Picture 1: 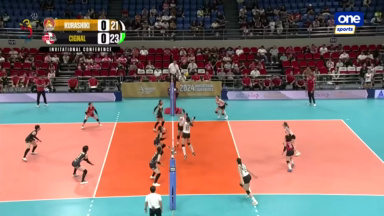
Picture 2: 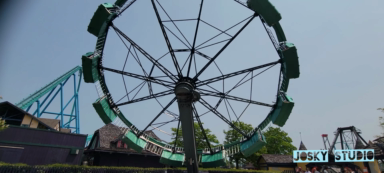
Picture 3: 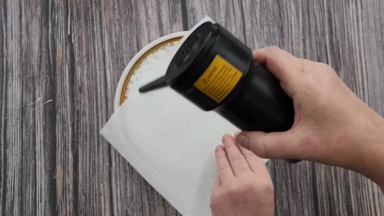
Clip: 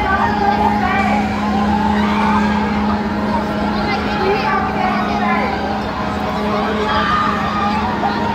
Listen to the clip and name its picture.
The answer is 2